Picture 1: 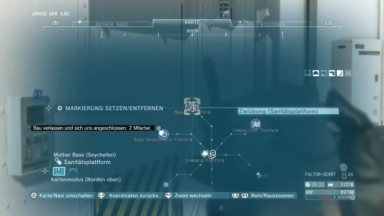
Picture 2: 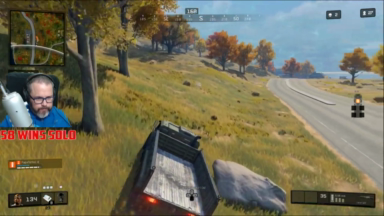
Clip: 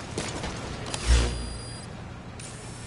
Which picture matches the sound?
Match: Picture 1